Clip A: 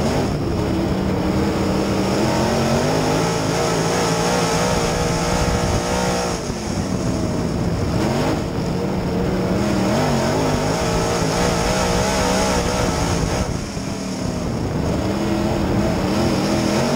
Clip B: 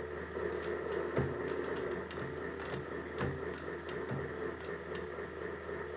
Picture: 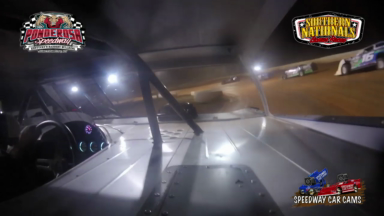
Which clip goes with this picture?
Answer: A